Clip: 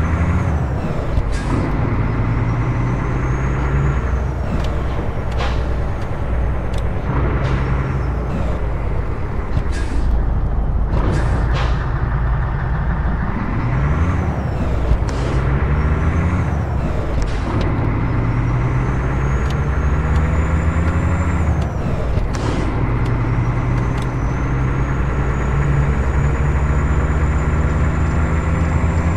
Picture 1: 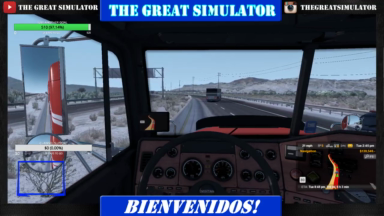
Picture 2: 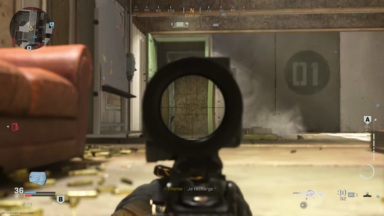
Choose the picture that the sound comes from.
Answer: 1